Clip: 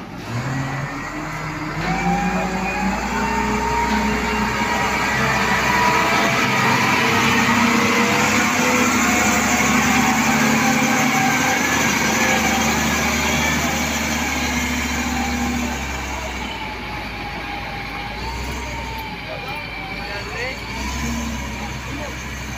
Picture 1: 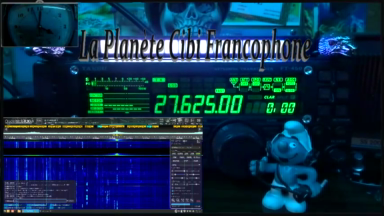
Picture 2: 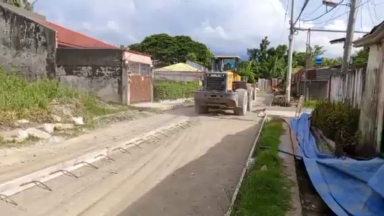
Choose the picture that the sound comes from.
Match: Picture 2